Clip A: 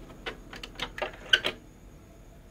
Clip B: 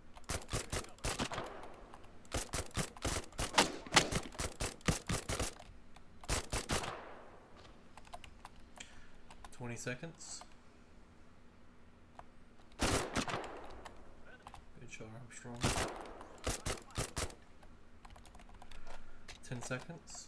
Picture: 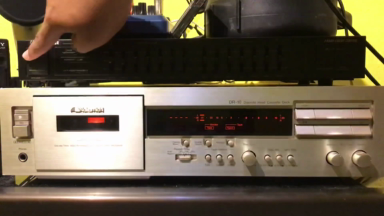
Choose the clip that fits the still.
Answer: A